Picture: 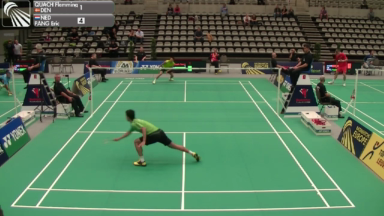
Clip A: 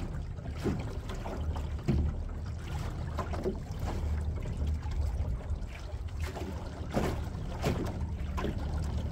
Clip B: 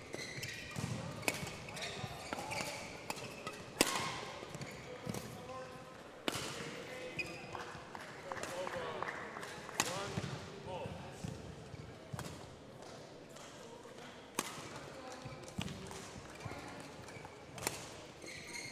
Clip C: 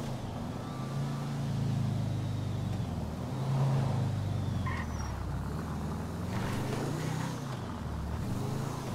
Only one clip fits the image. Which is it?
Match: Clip B